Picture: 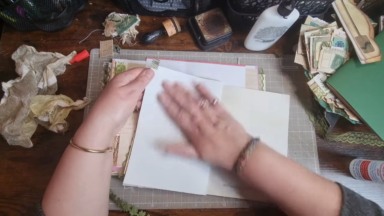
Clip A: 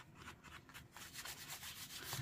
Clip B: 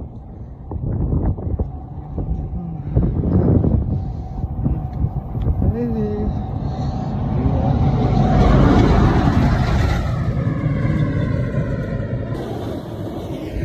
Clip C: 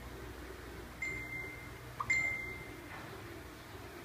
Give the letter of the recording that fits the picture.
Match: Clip A